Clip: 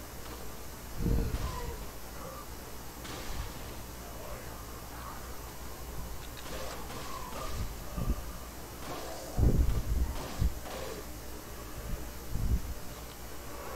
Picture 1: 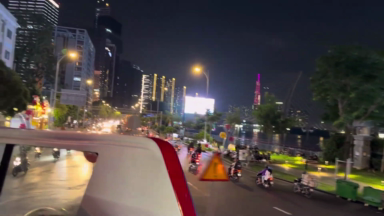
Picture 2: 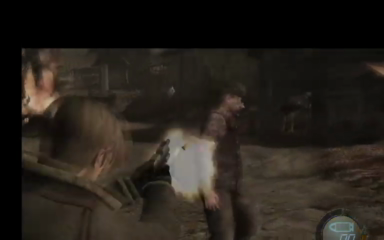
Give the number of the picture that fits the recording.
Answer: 2